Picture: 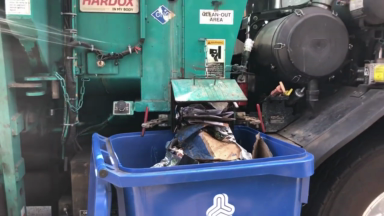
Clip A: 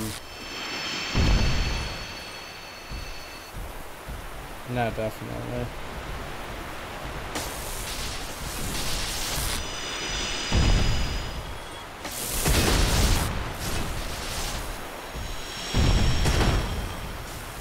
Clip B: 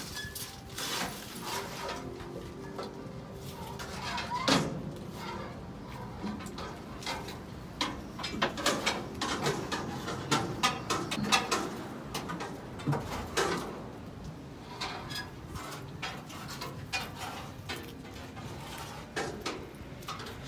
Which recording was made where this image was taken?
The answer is B